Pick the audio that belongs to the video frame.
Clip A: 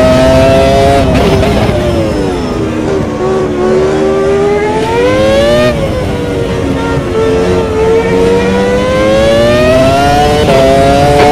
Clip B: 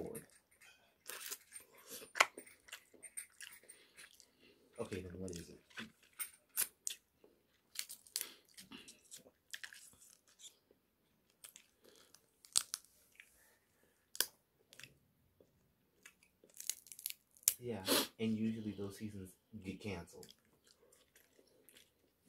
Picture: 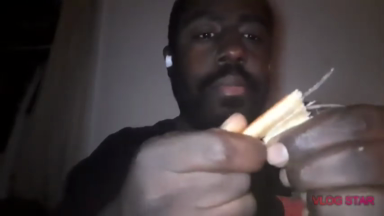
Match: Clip B